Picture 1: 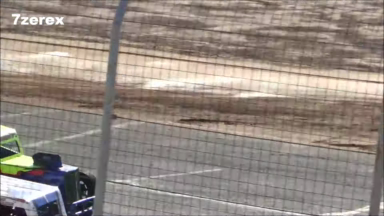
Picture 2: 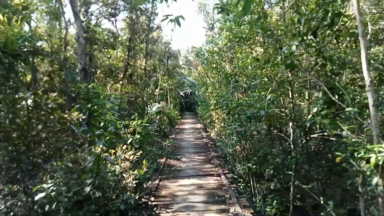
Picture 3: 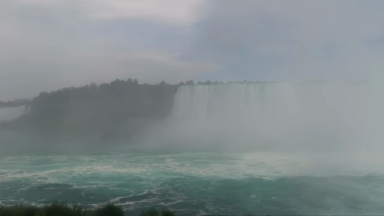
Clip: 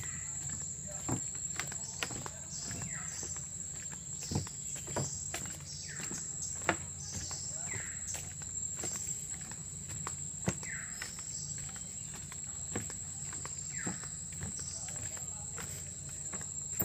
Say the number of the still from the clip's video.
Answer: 2